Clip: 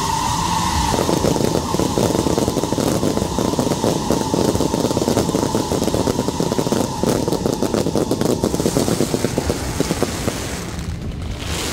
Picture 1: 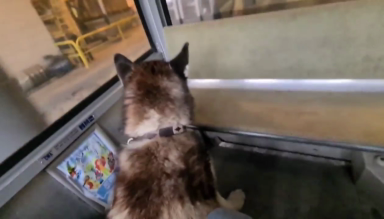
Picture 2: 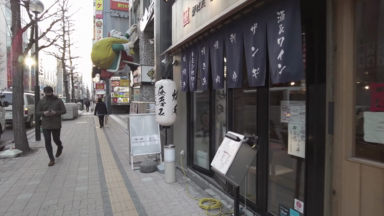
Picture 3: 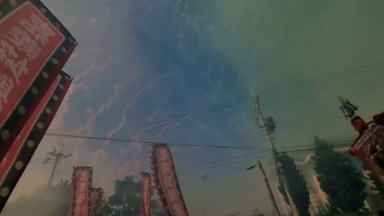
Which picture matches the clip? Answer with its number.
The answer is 3